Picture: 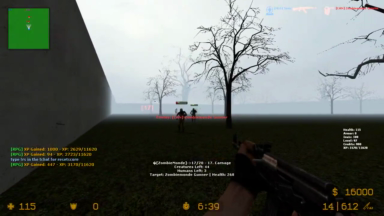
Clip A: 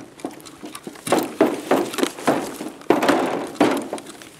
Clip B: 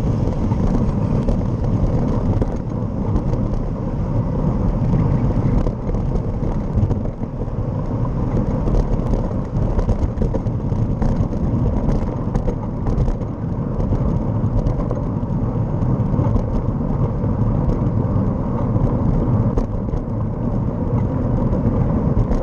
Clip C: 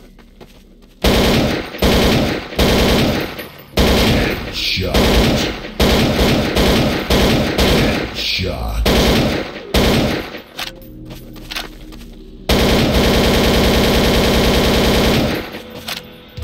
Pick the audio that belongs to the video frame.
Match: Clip C